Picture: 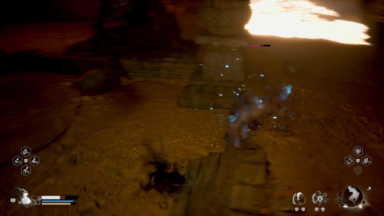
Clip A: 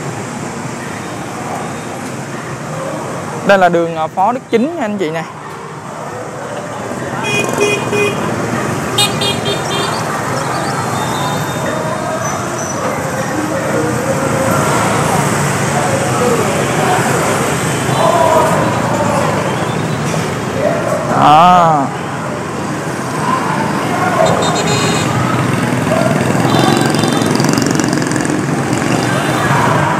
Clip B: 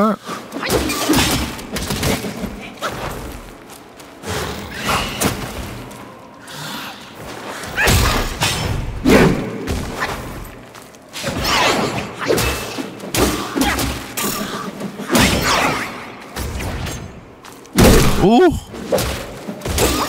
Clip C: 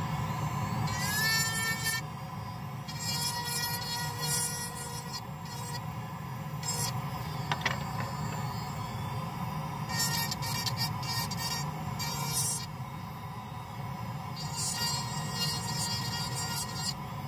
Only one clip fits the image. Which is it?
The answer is B